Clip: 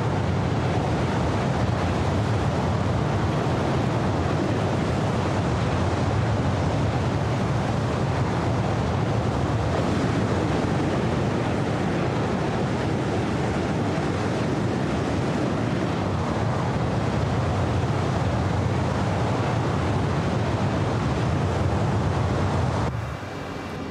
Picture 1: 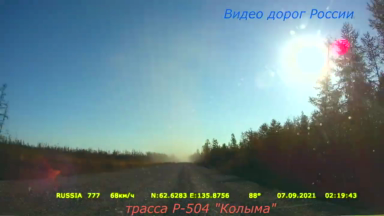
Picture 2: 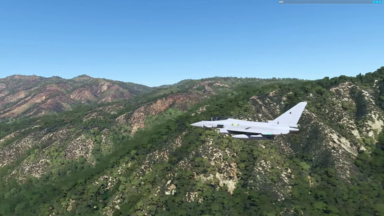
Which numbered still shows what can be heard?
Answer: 2